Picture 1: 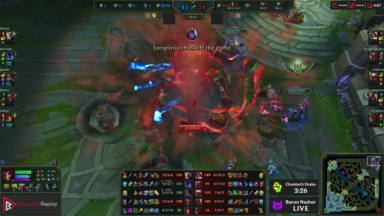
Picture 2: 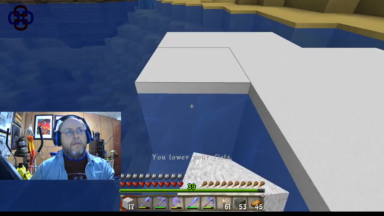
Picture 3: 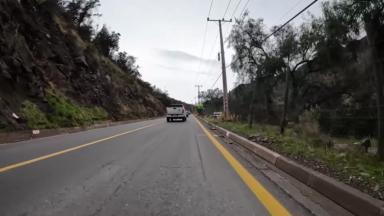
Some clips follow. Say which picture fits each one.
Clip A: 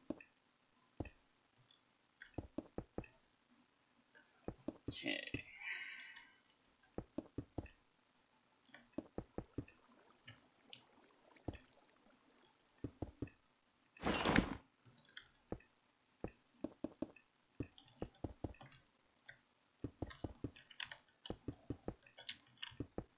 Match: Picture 2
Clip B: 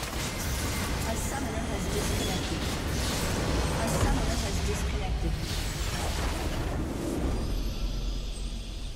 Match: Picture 1